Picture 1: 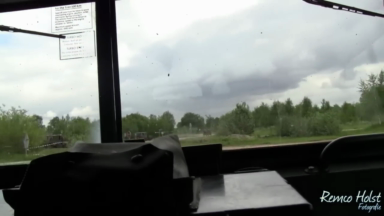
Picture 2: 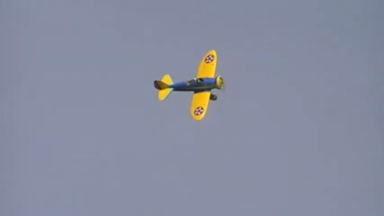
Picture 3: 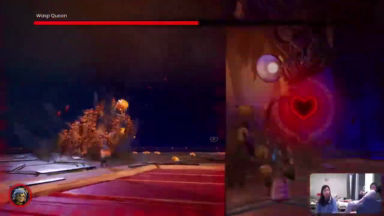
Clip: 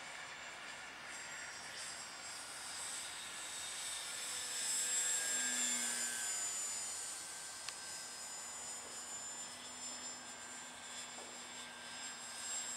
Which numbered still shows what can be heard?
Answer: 2